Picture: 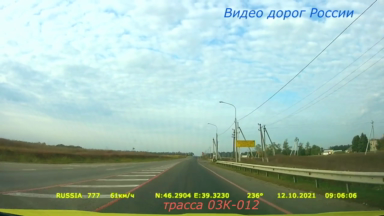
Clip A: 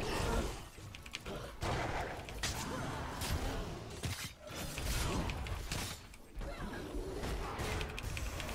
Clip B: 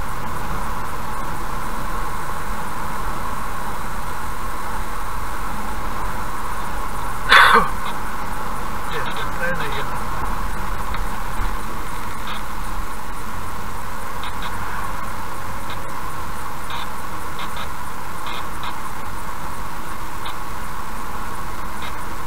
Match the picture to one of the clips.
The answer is B